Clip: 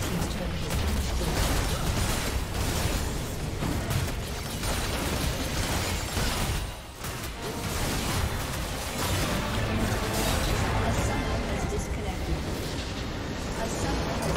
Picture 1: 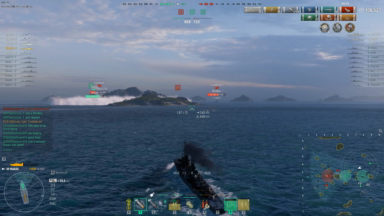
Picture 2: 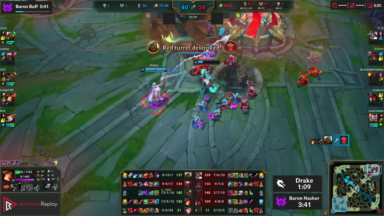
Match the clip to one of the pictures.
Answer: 2